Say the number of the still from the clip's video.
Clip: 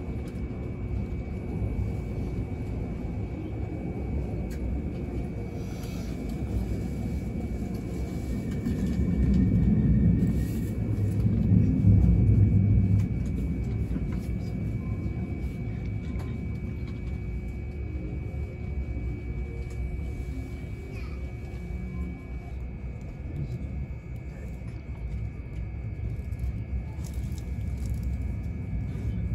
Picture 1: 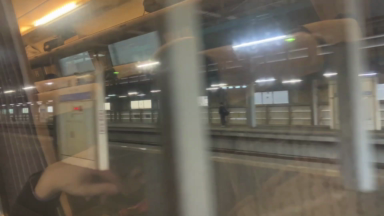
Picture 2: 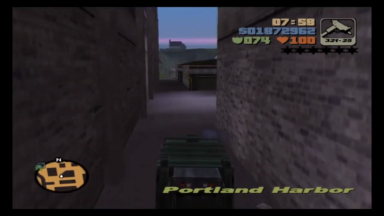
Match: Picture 1